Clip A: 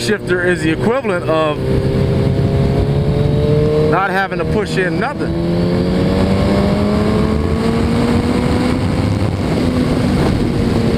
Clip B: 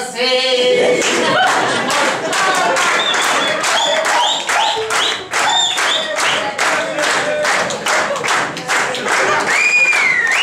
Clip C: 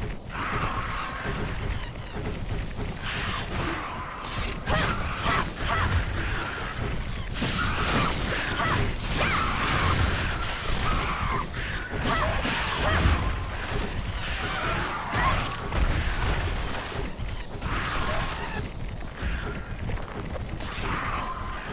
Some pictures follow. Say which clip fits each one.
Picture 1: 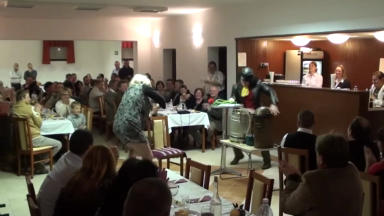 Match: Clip B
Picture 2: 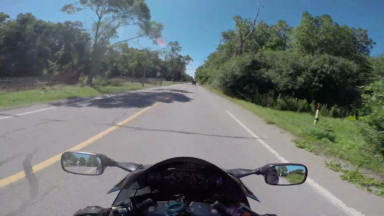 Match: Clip A